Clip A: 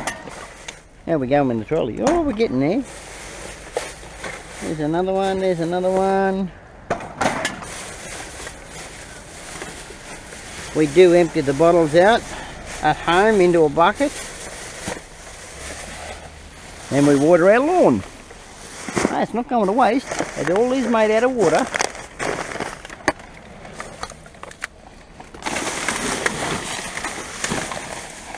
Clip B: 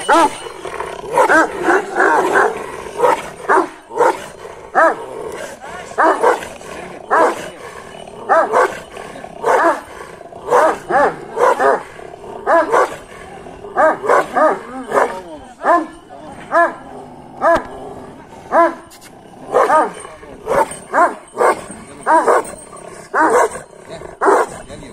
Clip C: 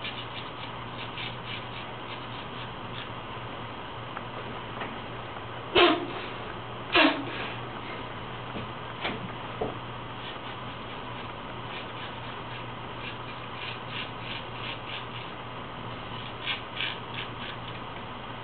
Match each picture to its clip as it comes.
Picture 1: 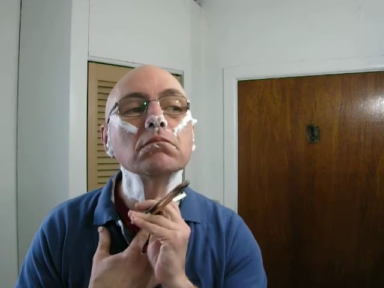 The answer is C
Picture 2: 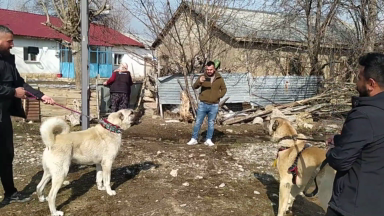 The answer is B